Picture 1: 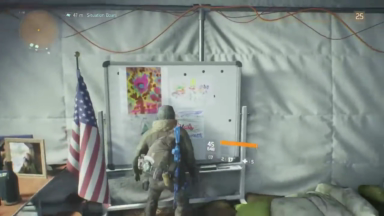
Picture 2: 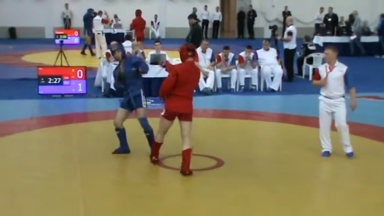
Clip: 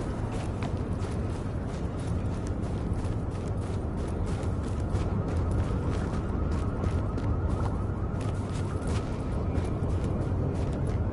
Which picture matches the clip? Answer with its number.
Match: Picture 1